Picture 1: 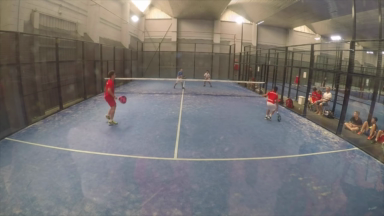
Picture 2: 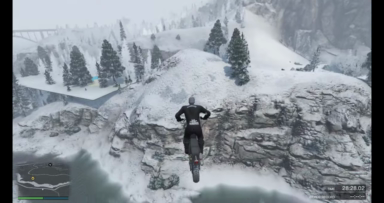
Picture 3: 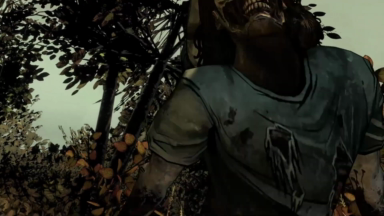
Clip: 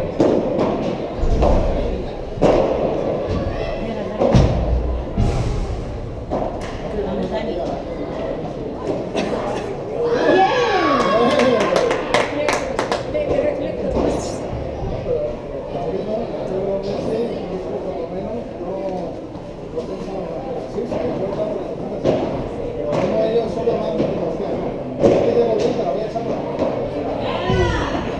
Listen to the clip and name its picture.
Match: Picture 1